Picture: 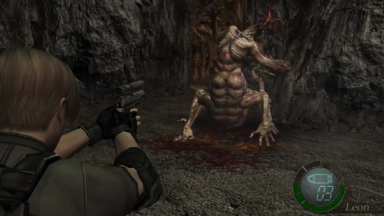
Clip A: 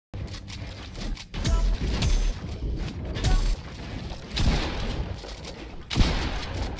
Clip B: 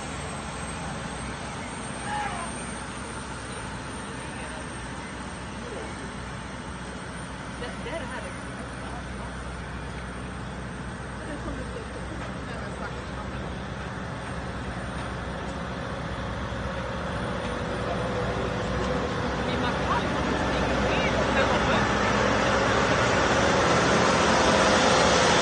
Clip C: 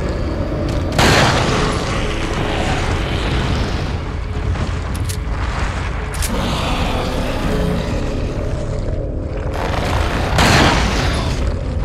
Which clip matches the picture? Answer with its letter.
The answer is C